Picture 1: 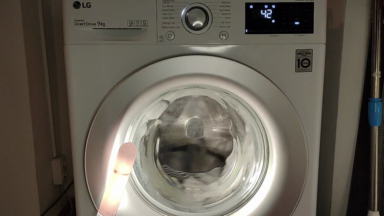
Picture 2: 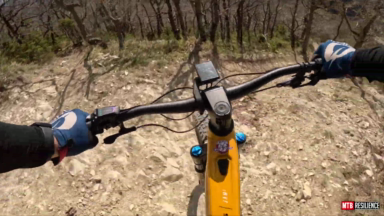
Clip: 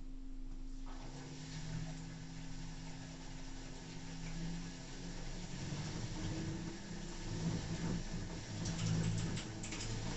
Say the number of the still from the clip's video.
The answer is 1